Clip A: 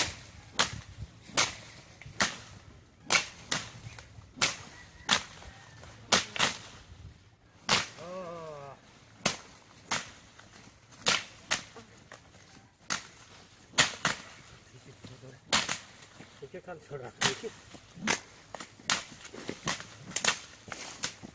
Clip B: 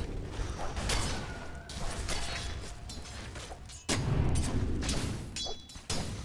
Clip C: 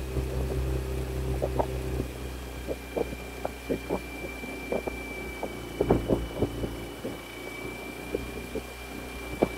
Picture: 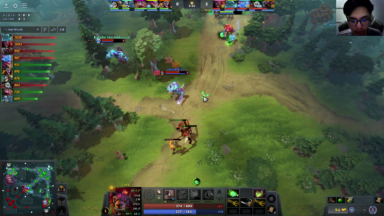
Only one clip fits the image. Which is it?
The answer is B